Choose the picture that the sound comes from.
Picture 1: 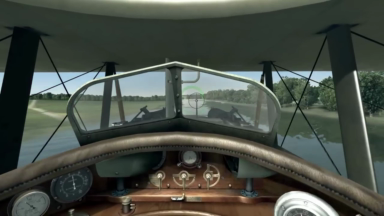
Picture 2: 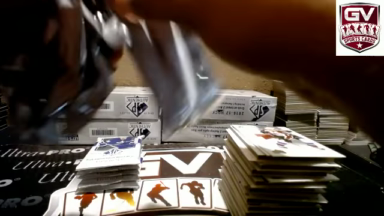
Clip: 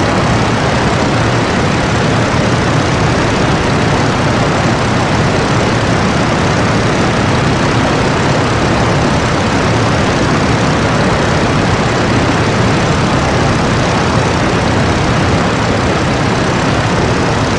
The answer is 1